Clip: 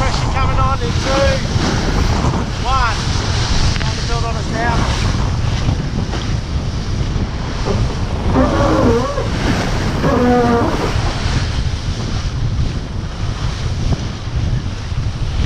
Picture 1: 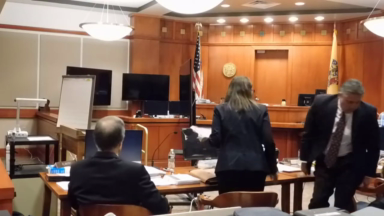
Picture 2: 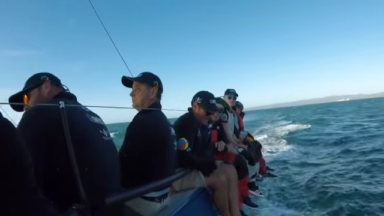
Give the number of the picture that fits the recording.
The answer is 2